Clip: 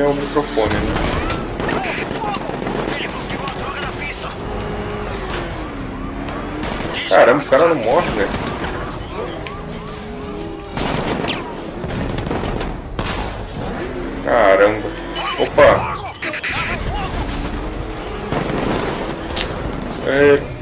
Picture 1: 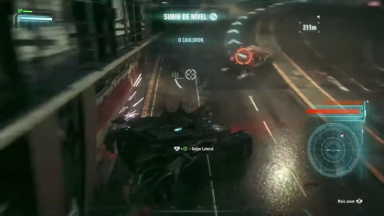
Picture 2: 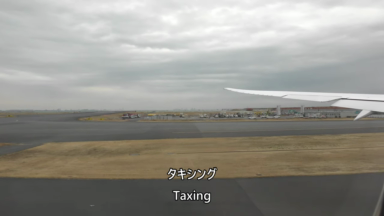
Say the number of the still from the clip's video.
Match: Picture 1